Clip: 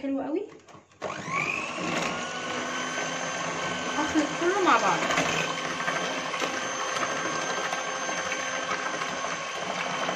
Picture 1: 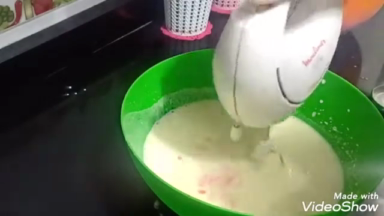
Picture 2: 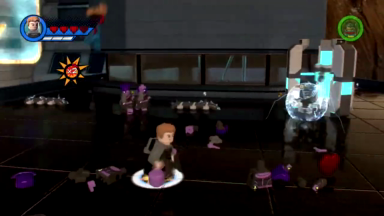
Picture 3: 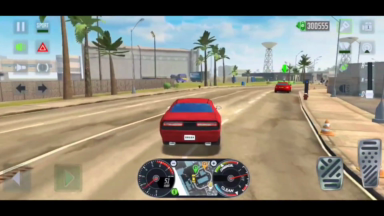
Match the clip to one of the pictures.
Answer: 1